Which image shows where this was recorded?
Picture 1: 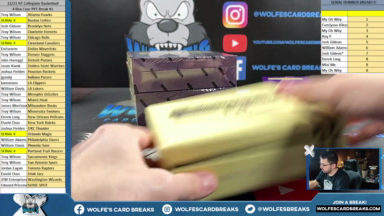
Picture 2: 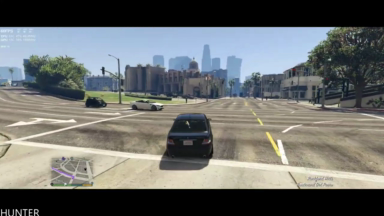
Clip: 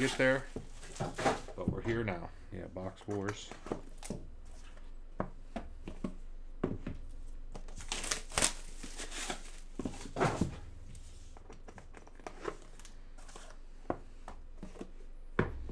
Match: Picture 1